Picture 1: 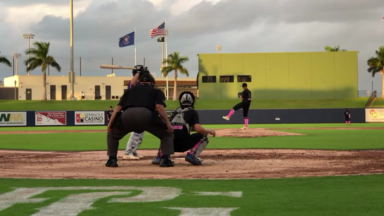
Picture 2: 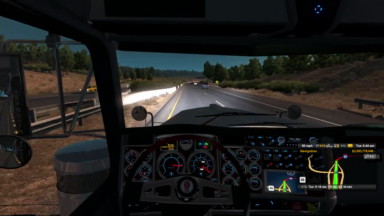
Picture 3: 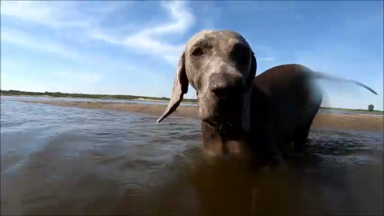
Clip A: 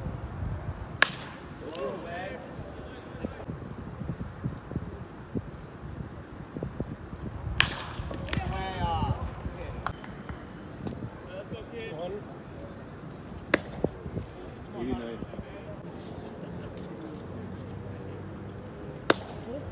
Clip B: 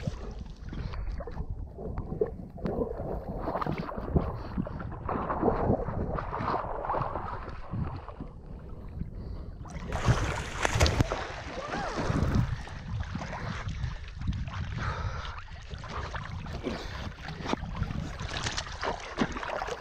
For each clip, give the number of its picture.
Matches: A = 1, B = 3